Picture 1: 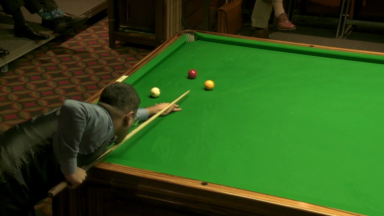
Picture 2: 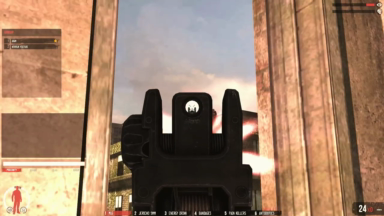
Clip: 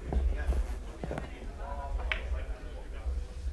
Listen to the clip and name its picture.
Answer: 1